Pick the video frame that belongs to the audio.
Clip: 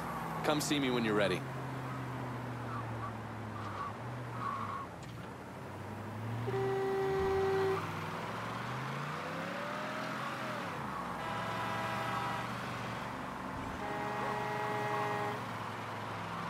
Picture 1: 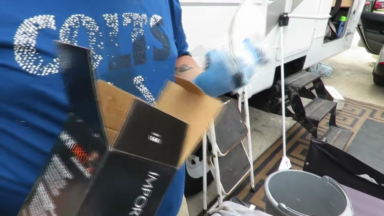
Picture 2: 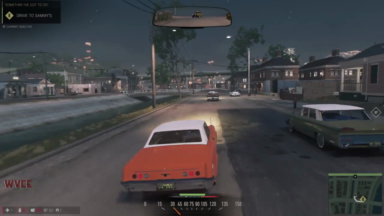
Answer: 2